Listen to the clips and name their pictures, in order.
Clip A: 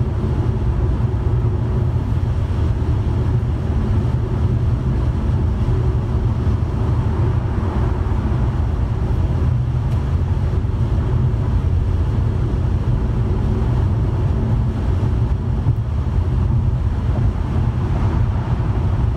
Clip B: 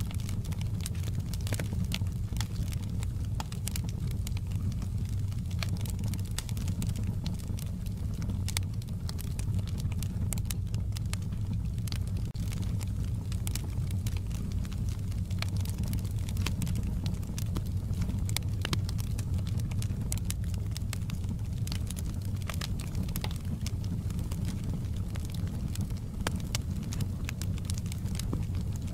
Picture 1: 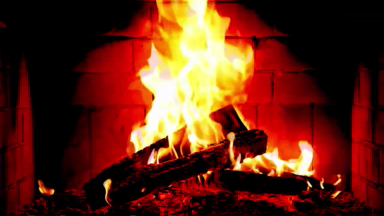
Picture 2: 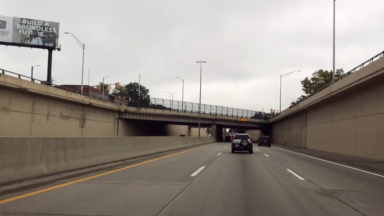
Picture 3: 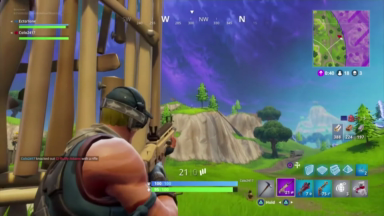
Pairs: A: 2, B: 1